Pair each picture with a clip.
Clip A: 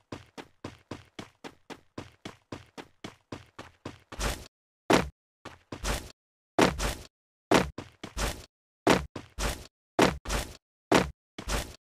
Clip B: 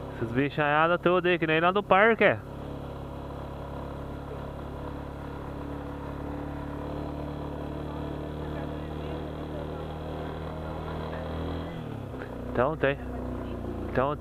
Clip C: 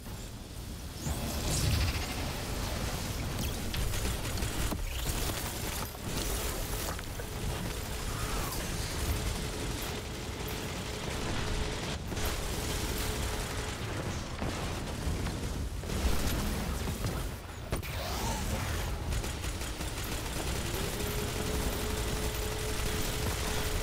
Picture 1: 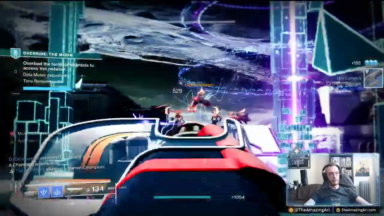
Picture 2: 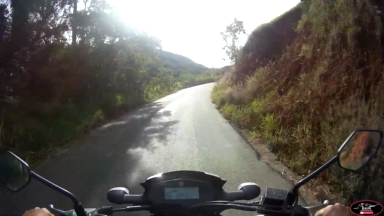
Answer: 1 C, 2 B